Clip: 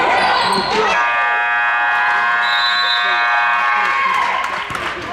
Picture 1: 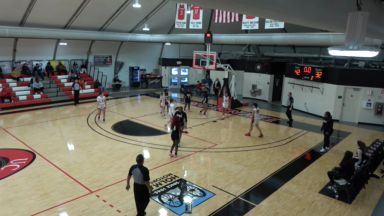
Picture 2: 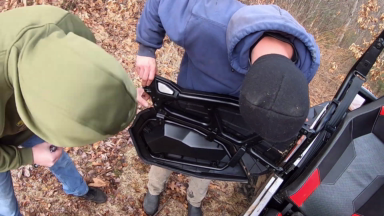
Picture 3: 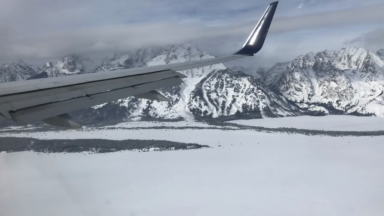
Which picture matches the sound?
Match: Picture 1